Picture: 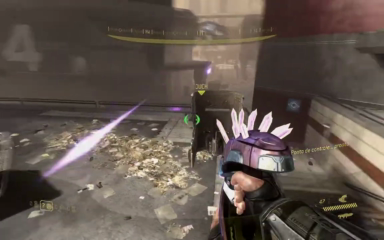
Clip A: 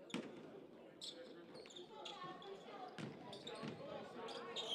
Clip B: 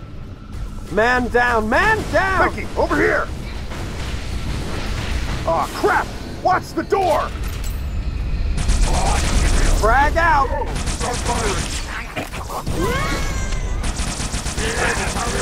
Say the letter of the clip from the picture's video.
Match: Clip B